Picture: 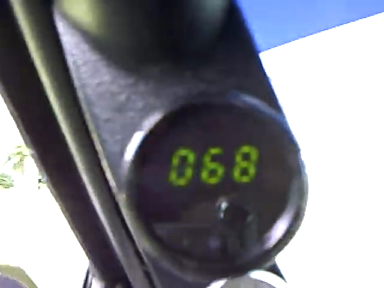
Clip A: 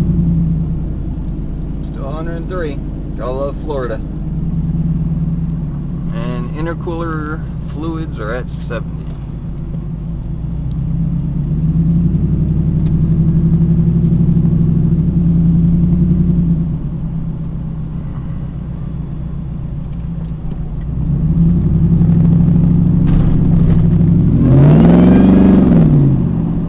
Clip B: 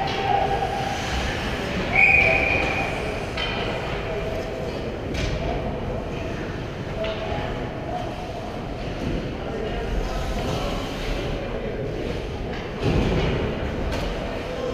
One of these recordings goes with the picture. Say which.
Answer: A